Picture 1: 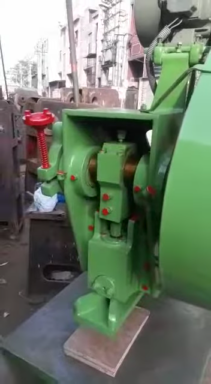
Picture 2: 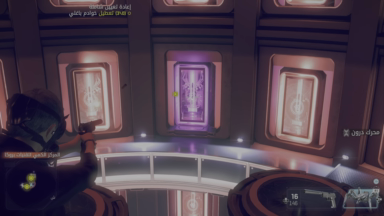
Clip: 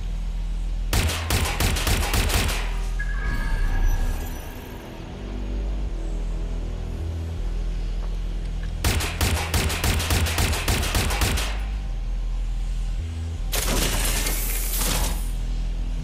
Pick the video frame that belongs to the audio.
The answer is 2